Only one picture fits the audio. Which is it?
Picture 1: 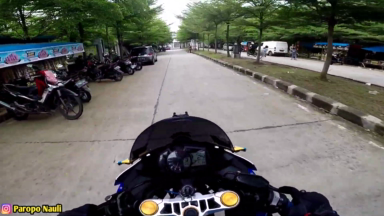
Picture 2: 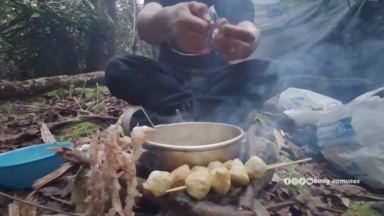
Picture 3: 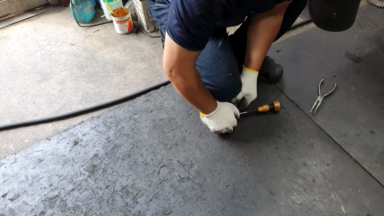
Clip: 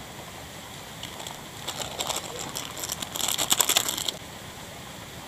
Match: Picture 2